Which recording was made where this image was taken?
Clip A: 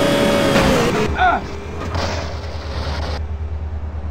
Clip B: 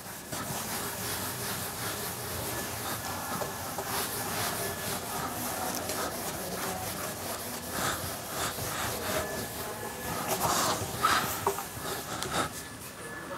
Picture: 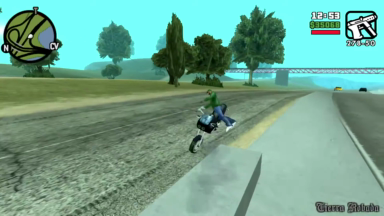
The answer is A